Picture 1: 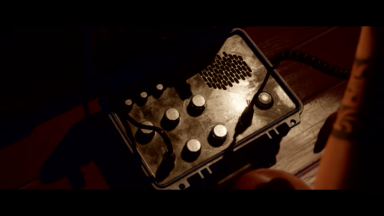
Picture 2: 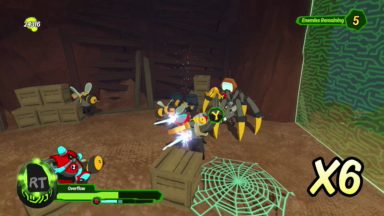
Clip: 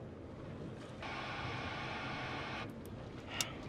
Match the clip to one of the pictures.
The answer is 1